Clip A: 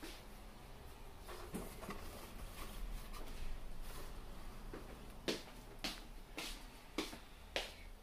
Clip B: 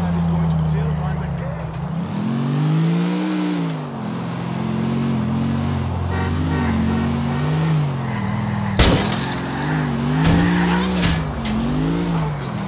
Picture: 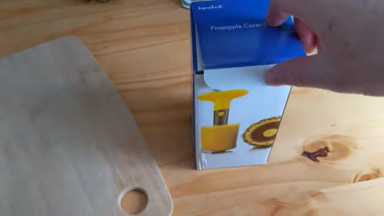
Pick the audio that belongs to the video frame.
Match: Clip A